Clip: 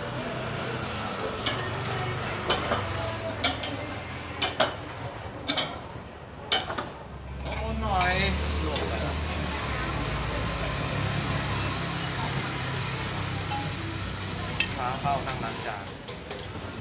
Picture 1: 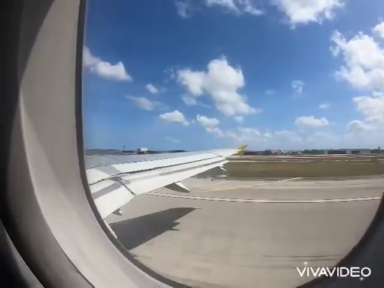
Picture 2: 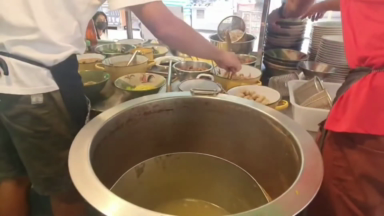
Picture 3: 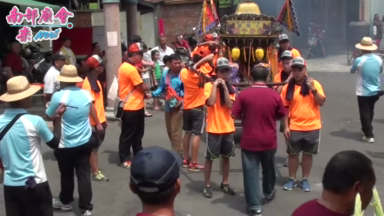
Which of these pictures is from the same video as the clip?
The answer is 2